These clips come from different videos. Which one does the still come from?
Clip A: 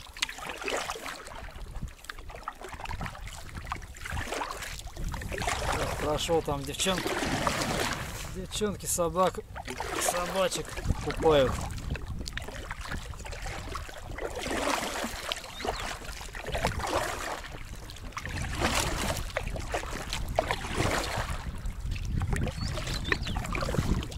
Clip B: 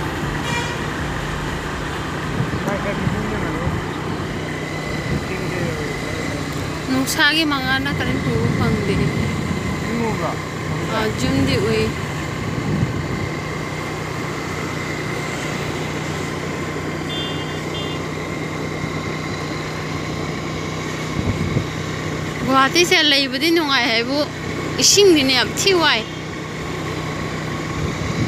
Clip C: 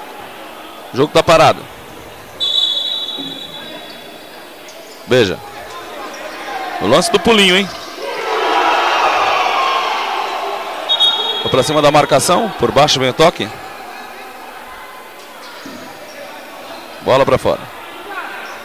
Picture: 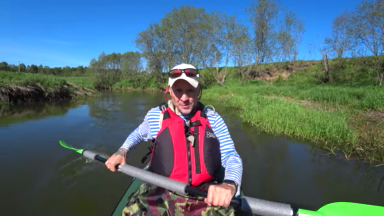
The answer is A